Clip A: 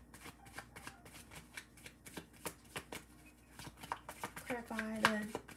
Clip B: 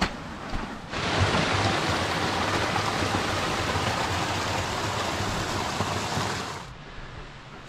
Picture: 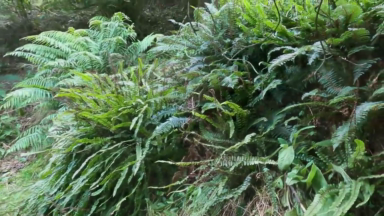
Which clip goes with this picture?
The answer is B